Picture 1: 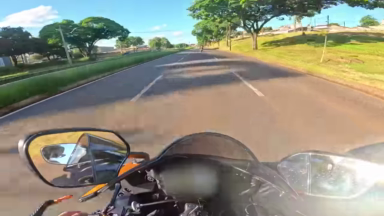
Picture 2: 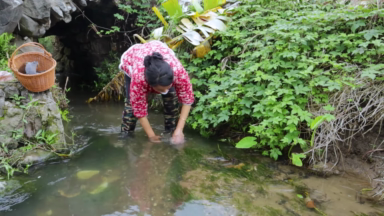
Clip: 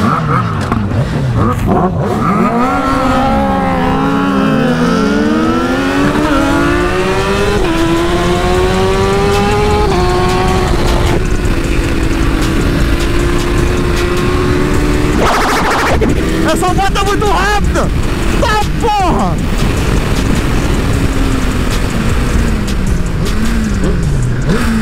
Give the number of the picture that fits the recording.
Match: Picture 1